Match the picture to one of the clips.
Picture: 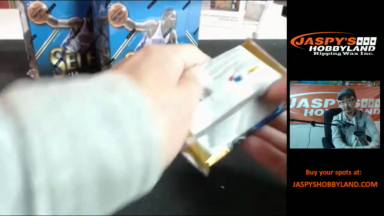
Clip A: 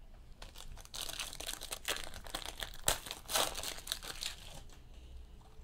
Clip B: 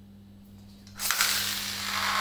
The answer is A